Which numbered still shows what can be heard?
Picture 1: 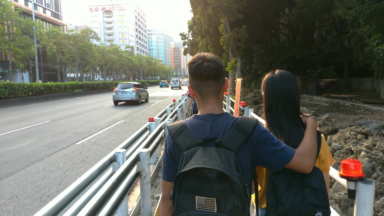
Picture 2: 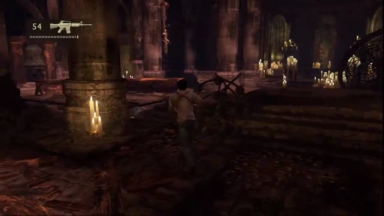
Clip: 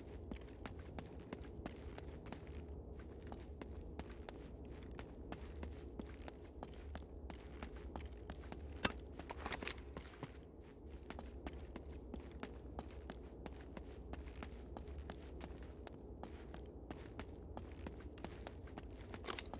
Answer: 2